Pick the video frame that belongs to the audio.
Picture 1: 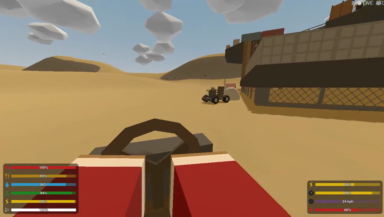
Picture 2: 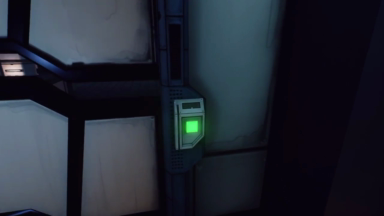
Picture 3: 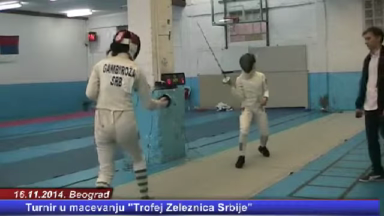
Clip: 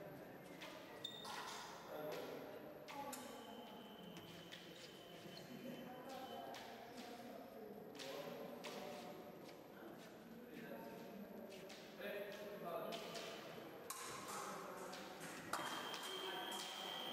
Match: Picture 3